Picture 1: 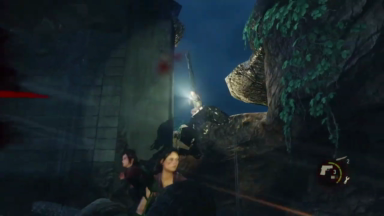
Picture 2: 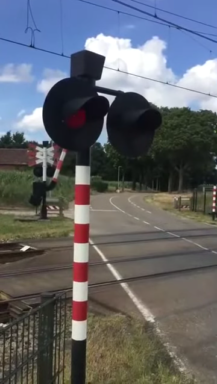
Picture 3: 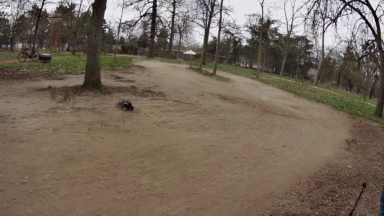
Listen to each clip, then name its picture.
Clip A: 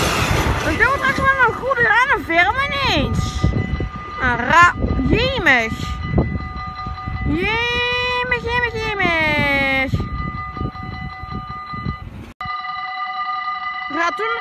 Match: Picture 2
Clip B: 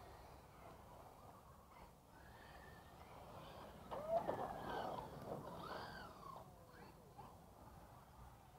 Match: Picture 3